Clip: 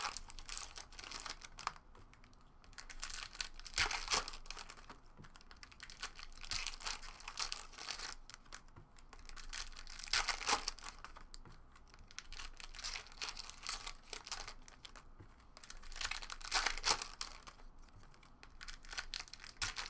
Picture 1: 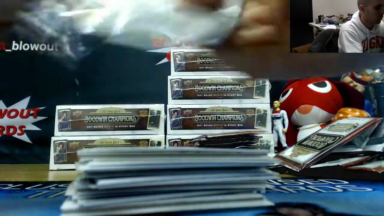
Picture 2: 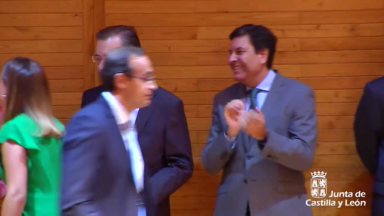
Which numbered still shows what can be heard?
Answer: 1